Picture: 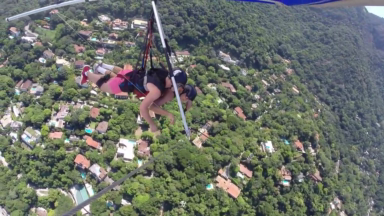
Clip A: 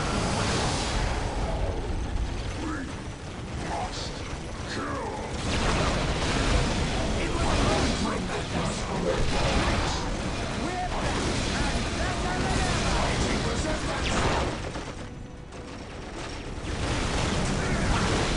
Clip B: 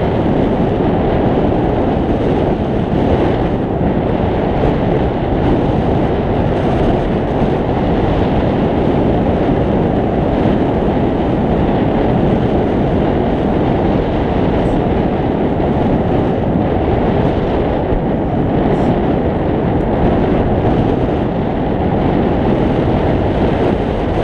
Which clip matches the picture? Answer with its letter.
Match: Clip B